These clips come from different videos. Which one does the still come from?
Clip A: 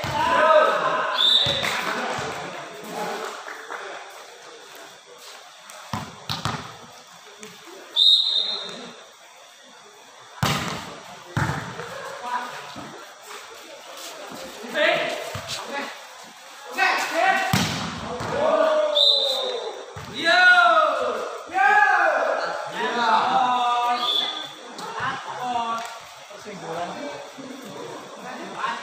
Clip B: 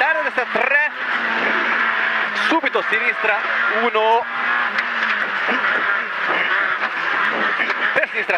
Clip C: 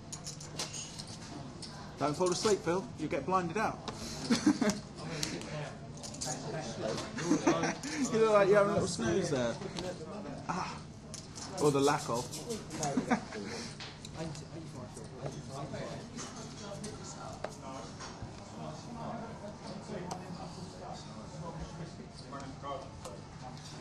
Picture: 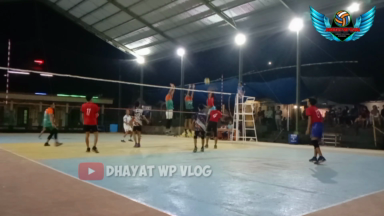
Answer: A